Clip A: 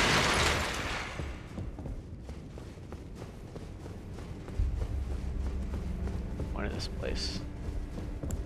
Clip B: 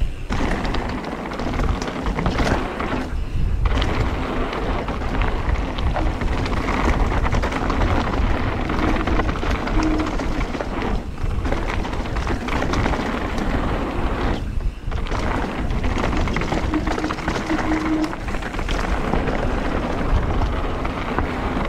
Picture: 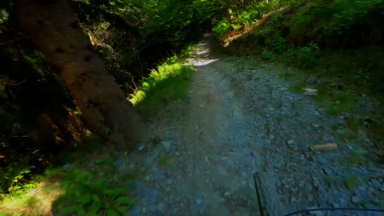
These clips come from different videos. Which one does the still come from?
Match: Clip B